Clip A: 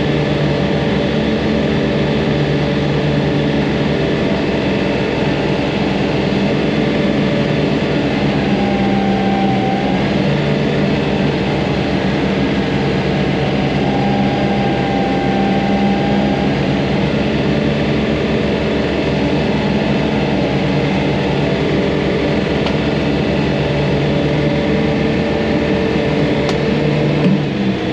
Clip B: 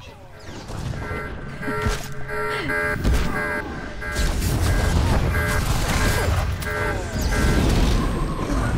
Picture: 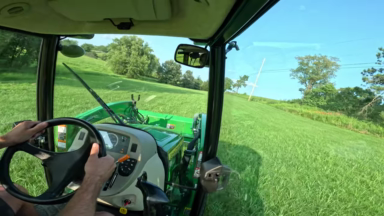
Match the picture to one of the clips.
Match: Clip A